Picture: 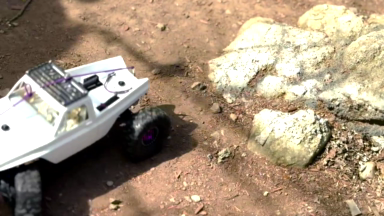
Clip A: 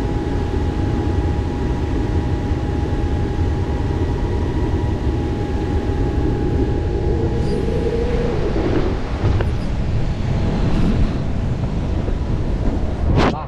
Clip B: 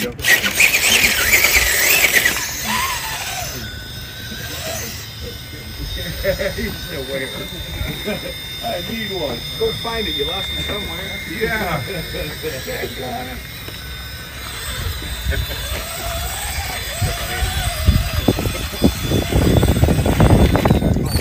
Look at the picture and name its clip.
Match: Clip B